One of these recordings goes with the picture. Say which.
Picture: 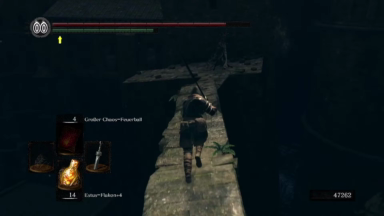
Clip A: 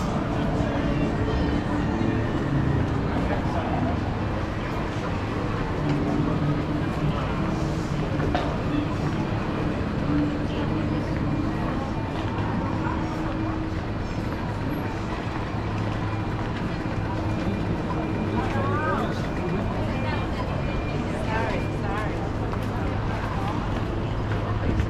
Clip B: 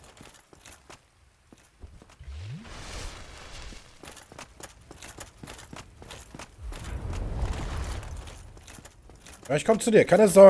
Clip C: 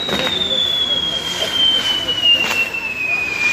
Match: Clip B